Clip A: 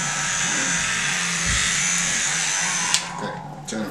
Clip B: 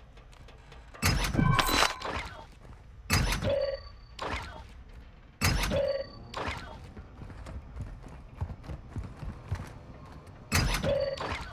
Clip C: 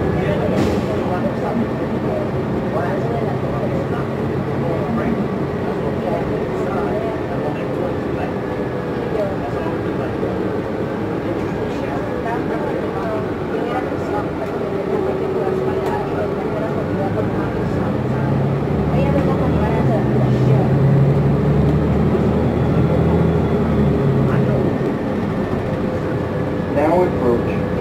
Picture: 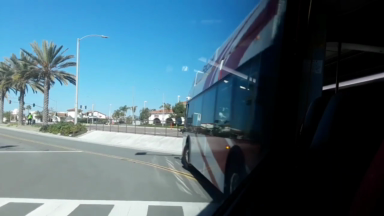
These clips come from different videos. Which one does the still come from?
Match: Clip C